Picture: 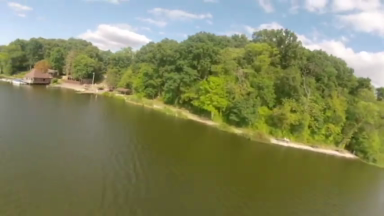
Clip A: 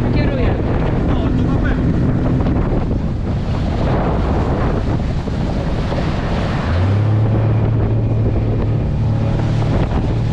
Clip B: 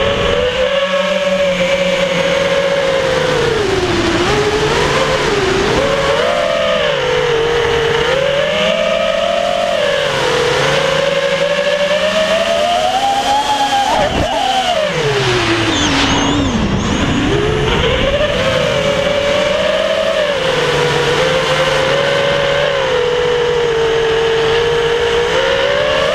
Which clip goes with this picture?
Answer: B